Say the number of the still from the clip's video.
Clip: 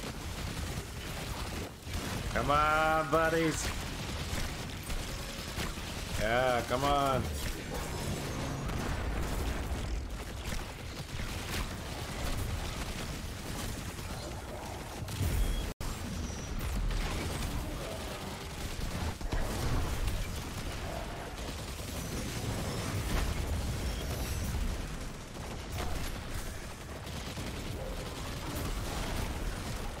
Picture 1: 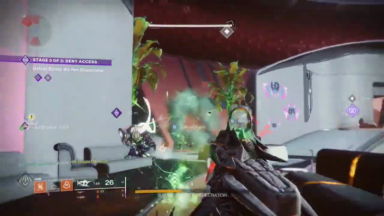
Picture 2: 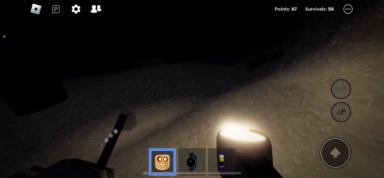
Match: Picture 1